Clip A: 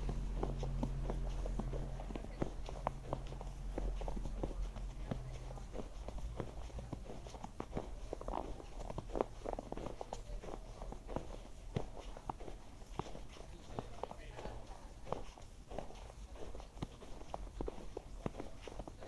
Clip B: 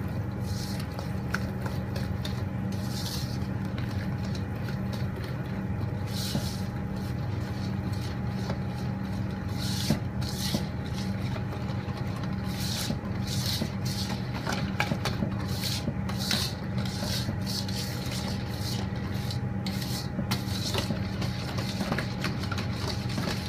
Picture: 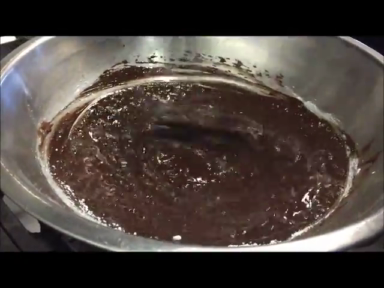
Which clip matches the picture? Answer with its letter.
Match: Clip B